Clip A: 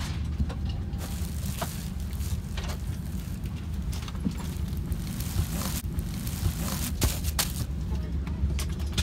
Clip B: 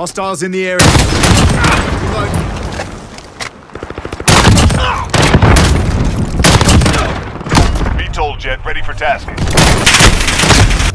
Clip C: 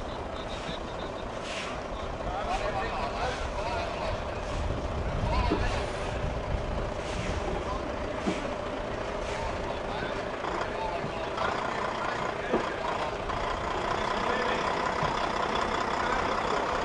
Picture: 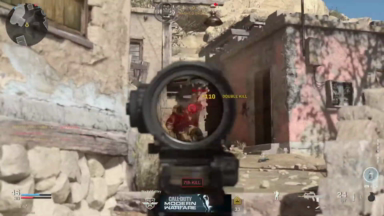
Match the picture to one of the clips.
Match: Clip B